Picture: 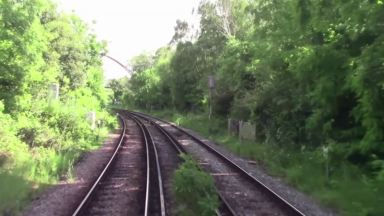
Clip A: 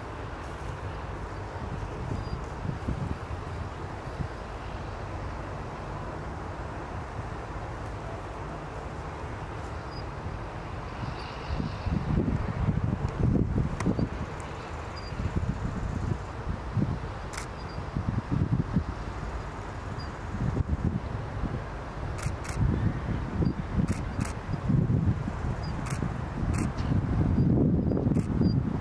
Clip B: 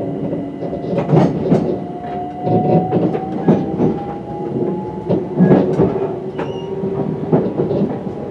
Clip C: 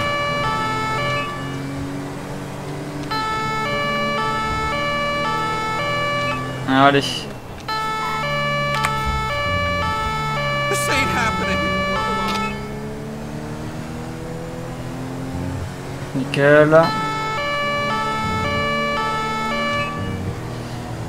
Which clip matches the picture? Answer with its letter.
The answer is B